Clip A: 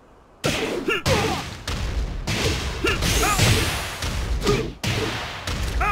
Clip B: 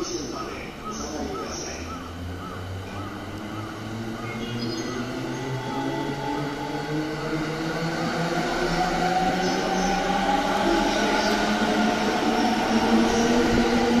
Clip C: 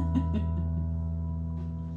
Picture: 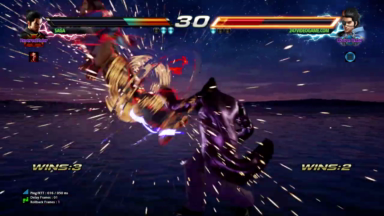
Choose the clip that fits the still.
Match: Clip A